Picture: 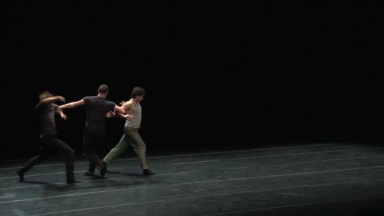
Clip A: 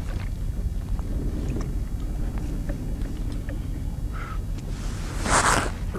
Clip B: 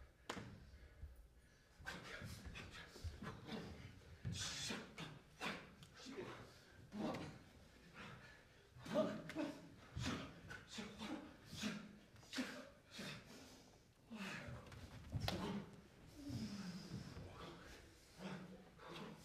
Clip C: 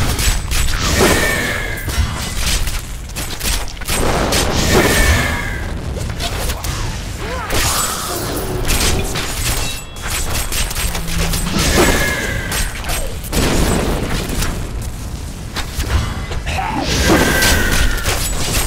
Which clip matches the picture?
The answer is B